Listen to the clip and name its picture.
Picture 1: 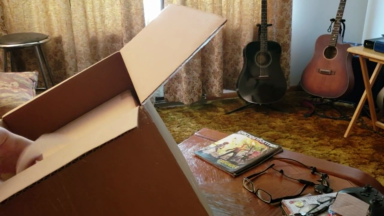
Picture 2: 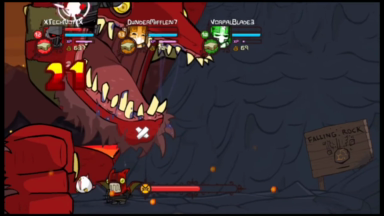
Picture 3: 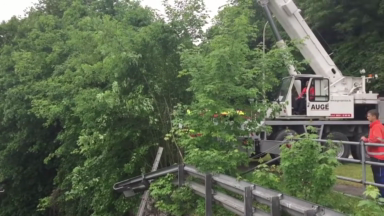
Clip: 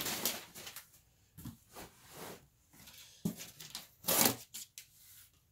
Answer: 1